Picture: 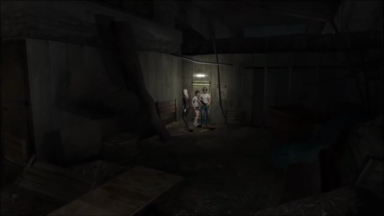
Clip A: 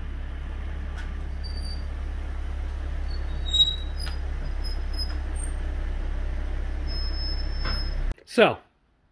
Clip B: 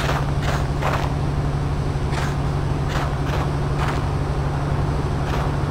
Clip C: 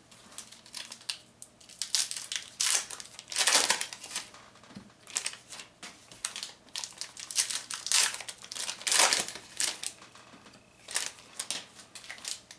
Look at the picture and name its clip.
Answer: B